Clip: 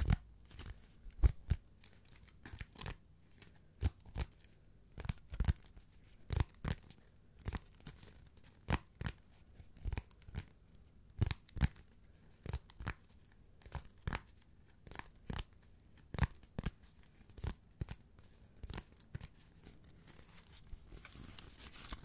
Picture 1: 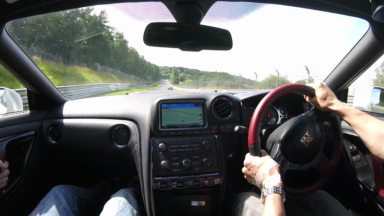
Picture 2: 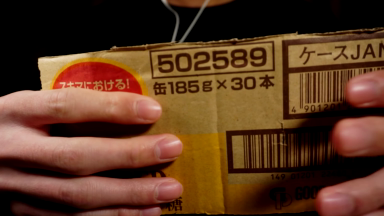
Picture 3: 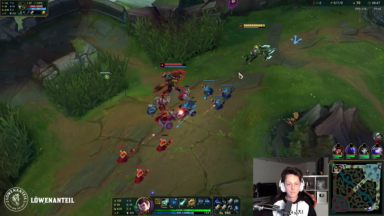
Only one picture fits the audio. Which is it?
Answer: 2